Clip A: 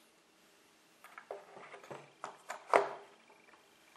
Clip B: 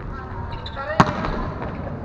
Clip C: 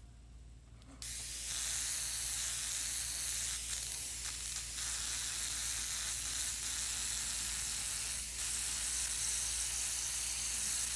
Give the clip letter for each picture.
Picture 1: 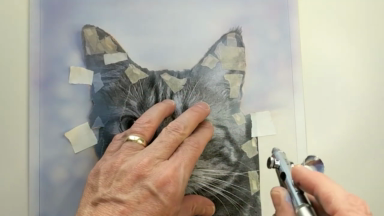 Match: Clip C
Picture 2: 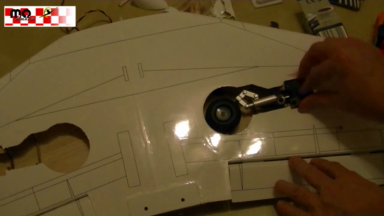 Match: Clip A